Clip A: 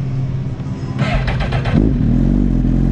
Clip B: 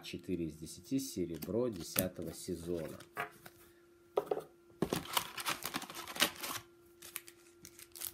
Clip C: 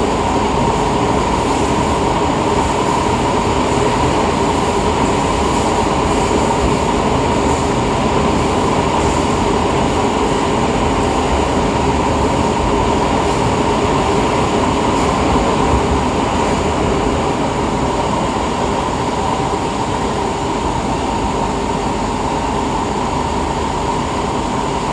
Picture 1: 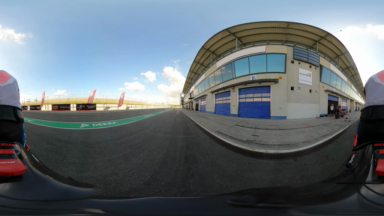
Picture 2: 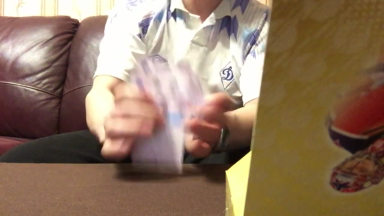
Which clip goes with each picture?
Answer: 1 A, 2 B